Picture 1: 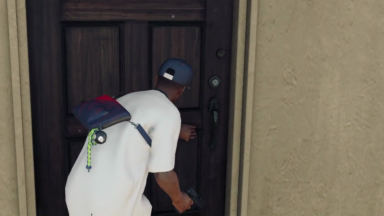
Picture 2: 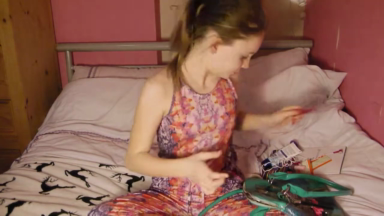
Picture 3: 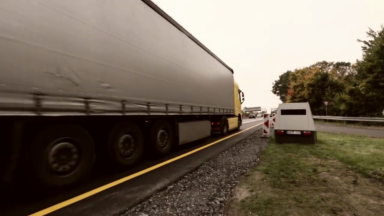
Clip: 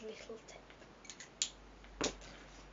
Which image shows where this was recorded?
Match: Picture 2